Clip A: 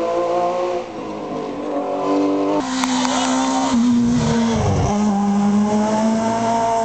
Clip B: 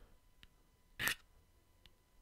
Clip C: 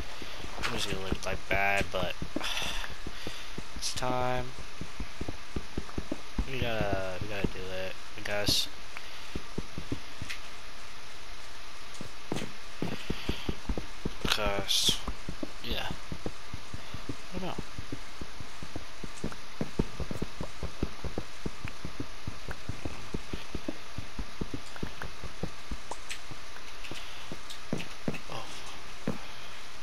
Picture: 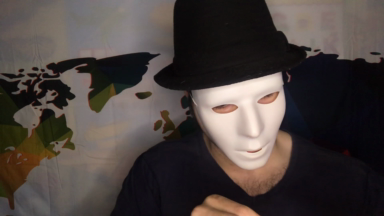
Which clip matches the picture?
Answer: B